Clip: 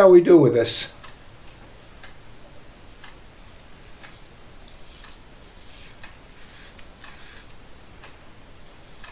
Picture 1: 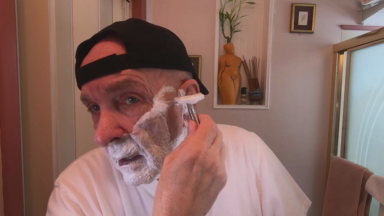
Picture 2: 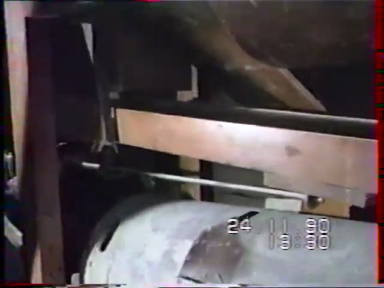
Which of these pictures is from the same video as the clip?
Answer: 1